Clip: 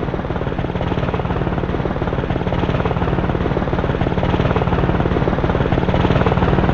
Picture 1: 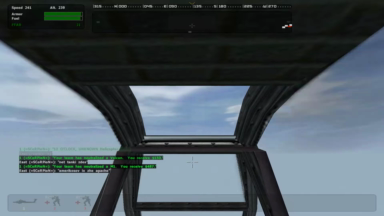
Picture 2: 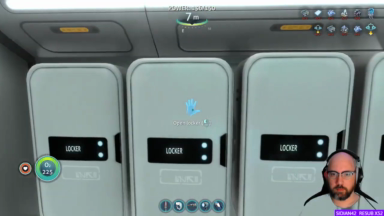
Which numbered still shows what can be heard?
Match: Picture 1